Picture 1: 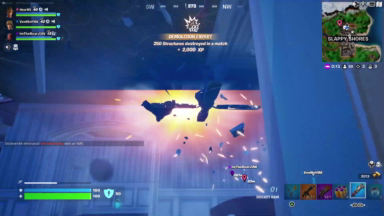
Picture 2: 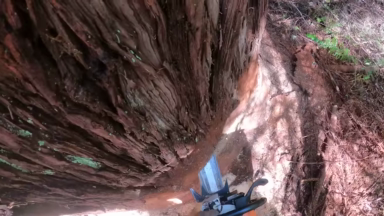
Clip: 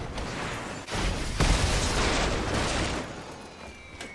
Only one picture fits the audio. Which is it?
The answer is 1